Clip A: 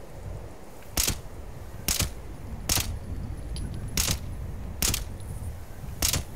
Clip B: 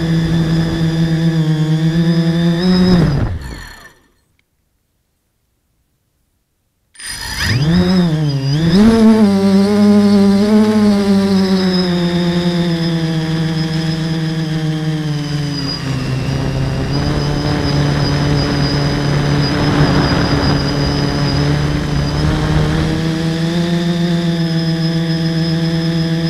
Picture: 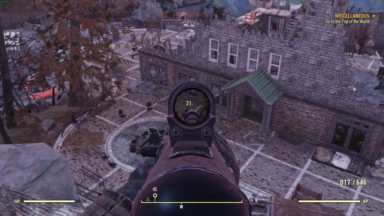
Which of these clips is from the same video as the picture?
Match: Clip A